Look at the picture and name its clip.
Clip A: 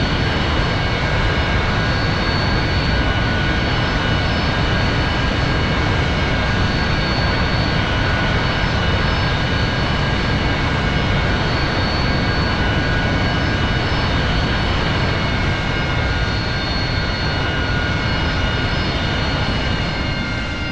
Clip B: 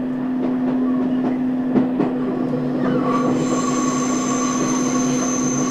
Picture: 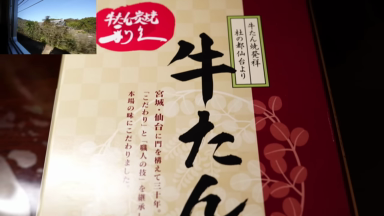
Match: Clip B